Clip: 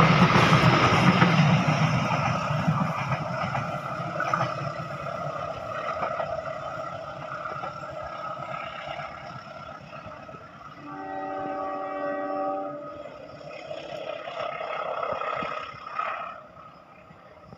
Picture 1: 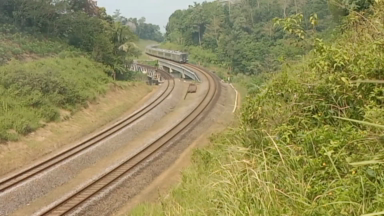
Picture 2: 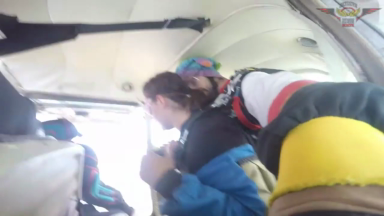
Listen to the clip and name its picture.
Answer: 1